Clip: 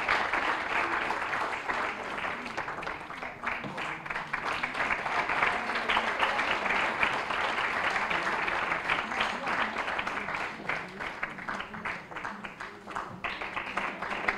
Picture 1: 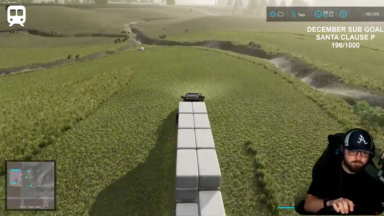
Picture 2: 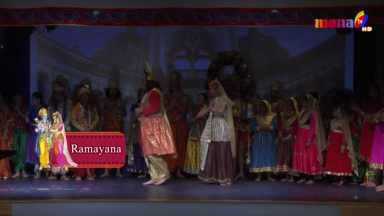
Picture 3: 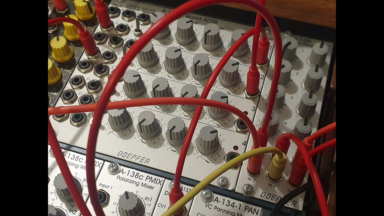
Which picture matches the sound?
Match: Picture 2